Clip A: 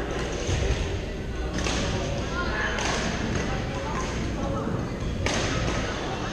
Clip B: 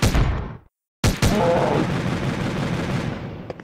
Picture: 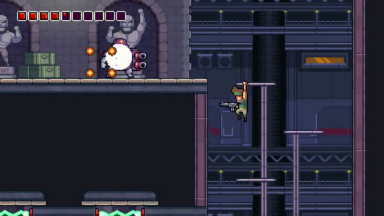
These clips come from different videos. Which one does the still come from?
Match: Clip B